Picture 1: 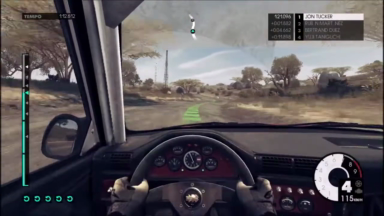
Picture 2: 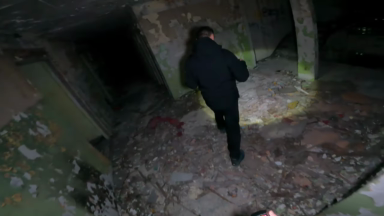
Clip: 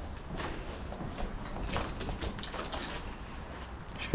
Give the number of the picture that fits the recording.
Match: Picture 2